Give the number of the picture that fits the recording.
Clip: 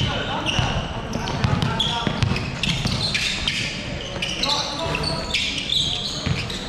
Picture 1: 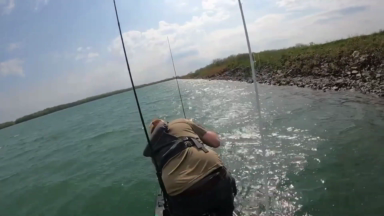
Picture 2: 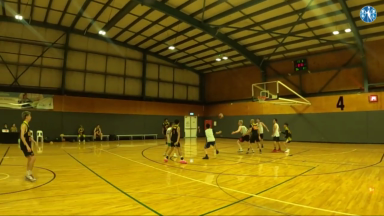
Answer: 2